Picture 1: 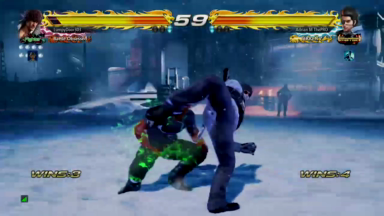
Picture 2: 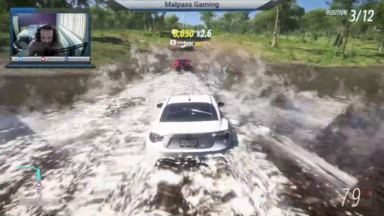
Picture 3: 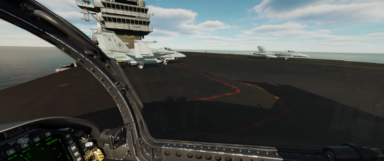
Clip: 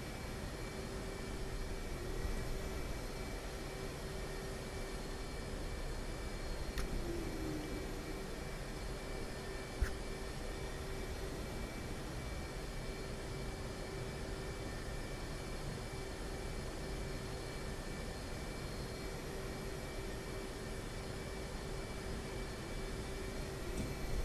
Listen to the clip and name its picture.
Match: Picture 3